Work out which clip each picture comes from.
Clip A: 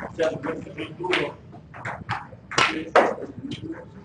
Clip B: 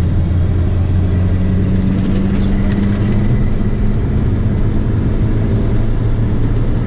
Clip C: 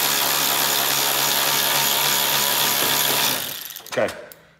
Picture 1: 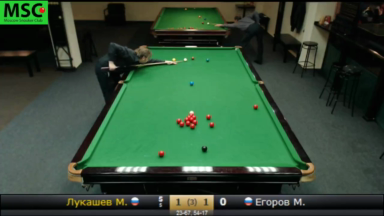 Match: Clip A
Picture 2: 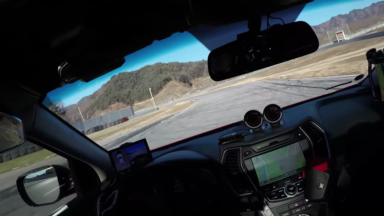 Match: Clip B